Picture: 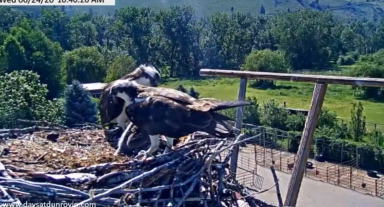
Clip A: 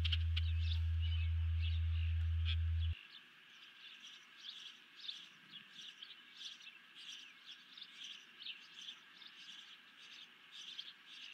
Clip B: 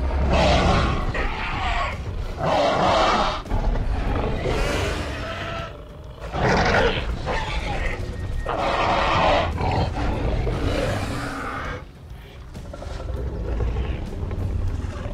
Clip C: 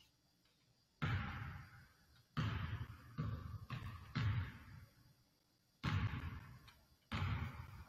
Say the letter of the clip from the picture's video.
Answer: A